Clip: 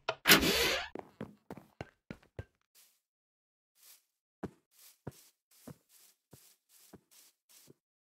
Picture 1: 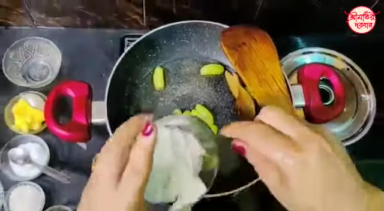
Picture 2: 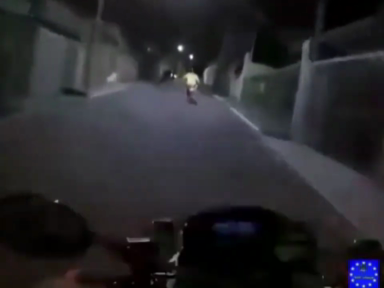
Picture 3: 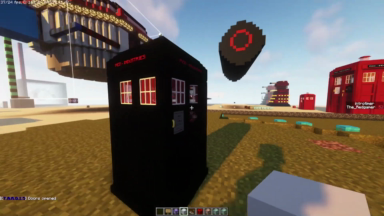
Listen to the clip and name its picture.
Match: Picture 3